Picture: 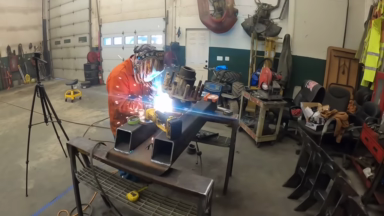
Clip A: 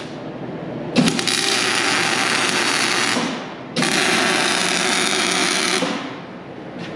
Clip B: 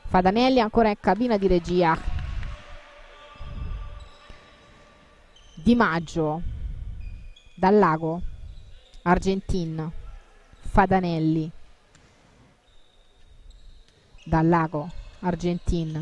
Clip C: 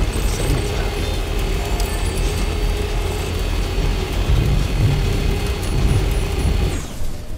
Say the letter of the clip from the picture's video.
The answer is A